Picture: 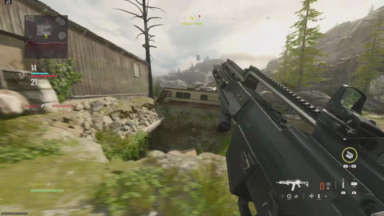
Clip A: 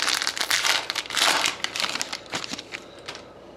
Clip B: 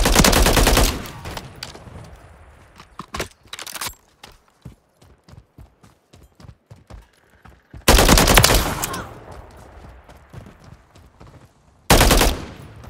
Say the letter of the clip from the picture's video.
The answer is B